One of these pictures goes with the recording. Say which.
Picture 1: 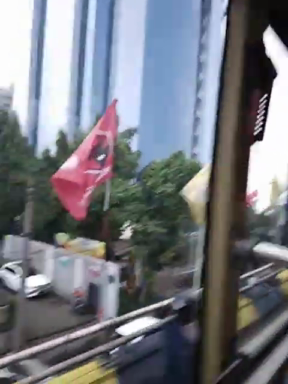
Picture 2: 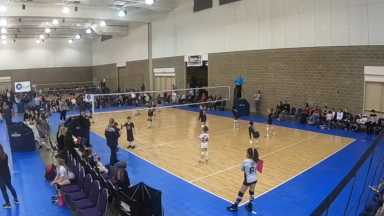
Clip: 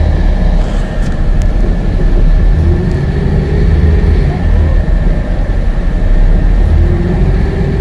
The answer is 1